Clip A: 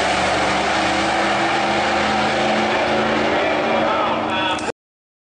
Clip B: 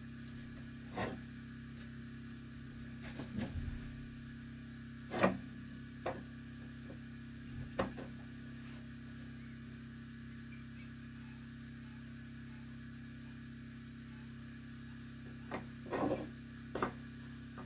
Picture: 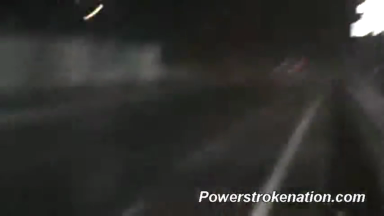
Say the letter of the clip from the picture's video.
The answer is A